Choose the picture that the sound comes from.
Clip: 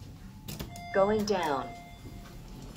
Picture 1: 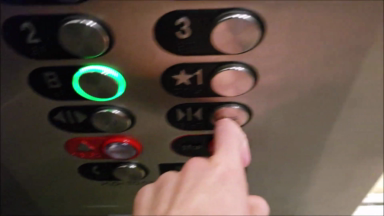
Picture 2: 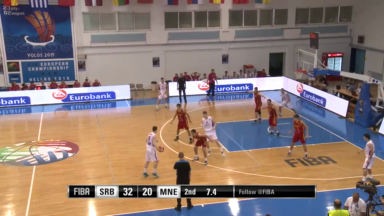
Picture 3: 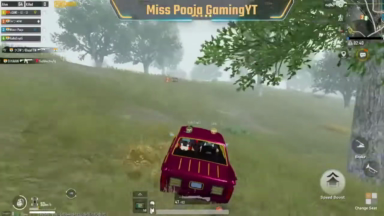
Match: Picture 1